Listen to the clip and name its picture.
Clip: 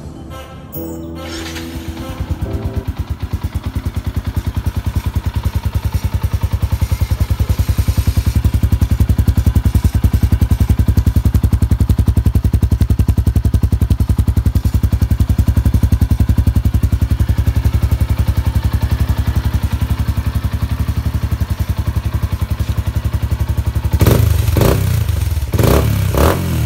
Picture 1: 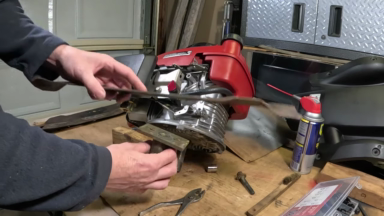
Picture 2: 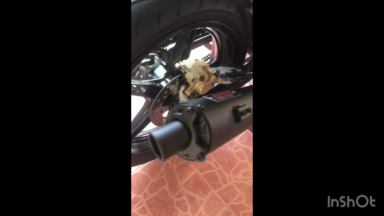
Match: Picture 2